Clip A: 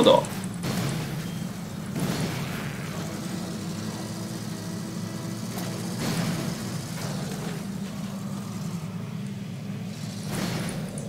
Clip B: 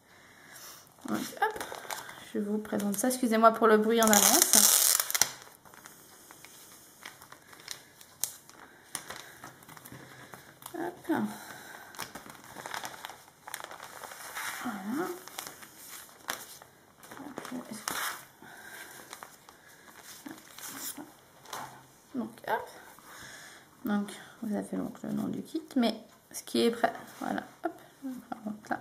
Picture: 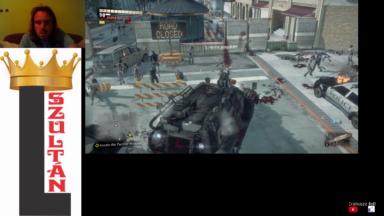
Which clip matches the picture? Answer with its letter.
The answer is A